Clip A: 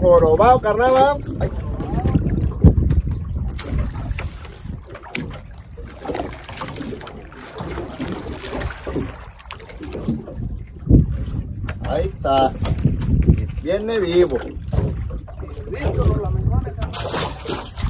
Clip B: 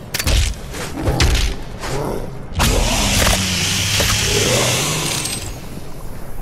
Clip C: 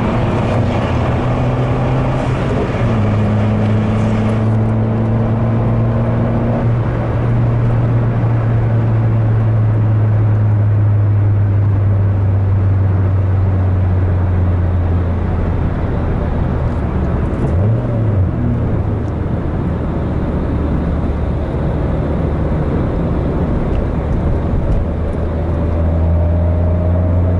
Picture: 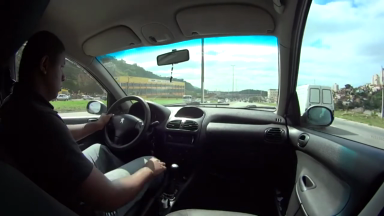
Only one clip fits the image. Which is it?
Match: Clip C